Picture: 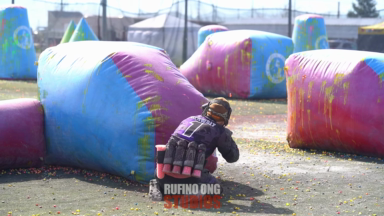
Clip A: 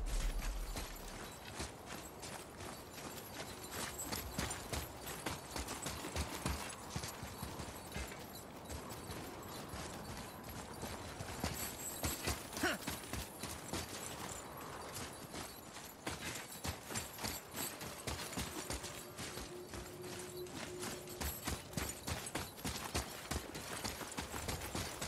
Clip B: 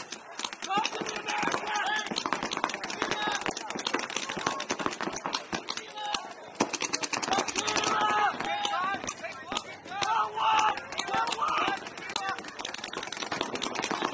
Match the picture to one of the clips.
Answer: B